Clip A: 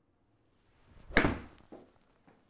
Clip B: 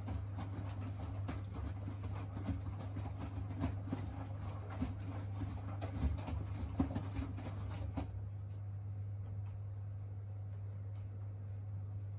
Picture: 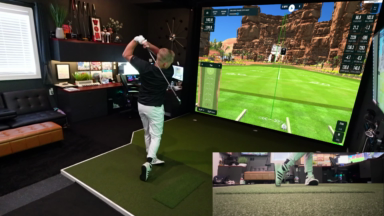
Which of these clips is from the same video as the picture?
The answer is A